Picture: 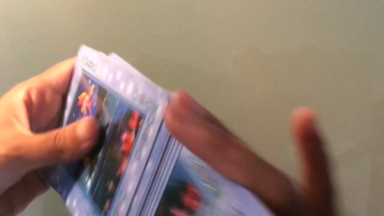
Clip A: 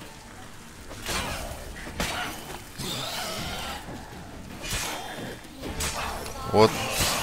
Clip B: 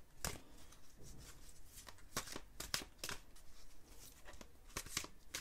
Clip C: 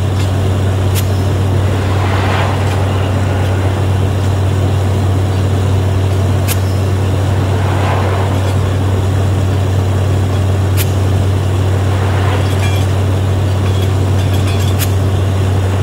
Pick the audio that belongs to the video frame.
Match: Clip B